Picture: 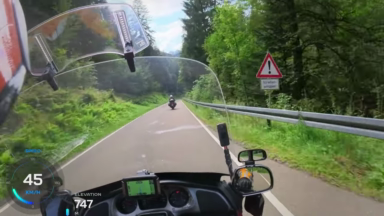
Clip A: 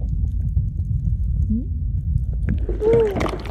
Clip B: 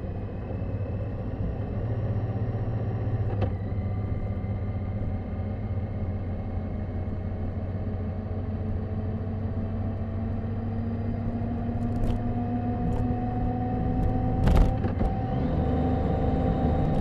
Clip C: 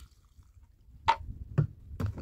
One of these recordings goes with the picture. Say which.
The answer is B